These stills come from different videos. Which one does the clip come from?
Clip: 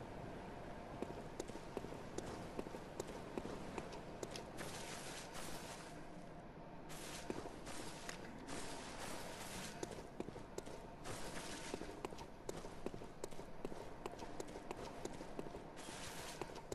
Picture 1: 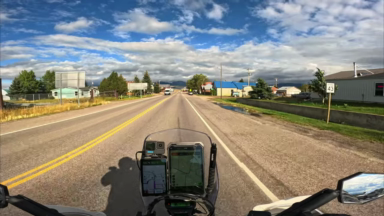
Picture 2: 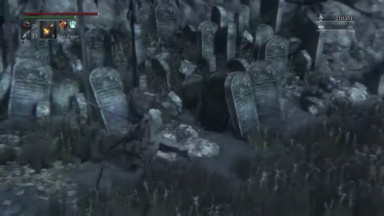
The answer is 2